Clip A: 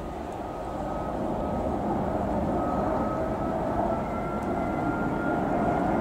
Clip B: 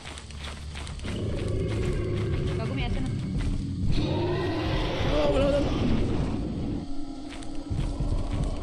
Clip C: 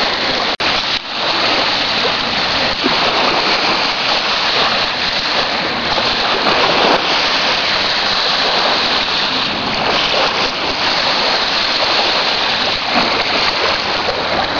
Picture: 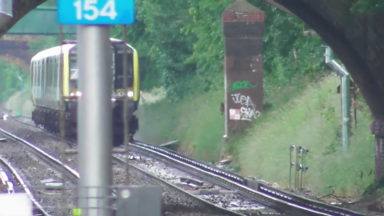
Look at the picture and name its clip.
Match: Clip A